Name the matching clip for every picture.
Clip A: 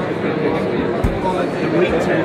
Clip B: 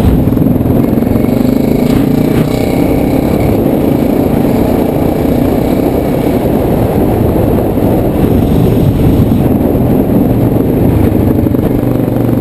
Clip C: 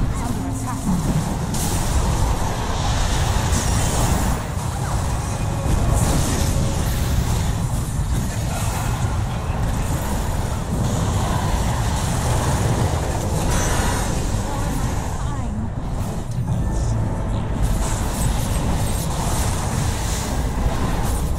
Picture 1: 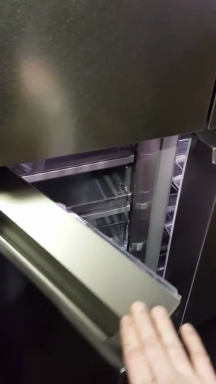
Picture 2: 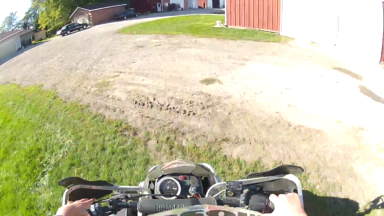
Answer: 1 A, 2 B